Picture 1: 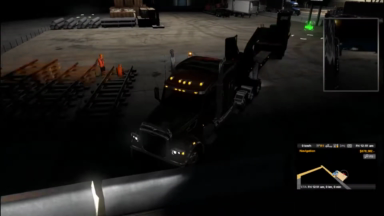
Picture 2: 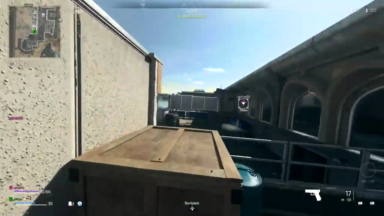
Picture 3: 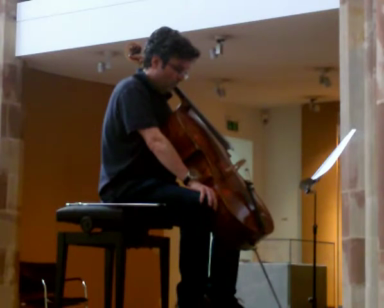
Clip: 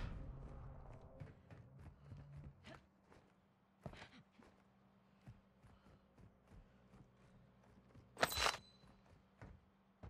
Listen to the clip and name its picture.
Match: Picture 2